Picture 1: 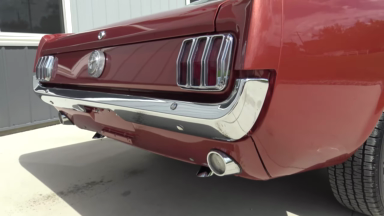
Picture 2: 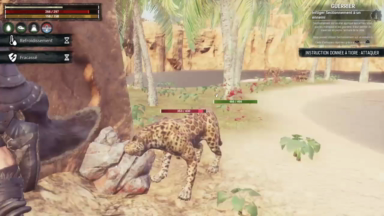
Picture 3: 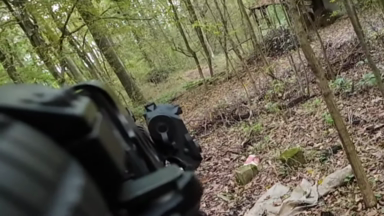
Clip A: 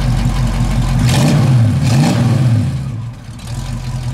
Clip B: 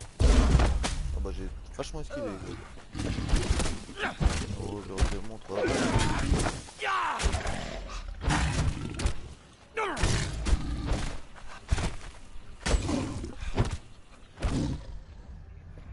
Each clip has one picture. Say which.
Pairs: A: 1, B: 2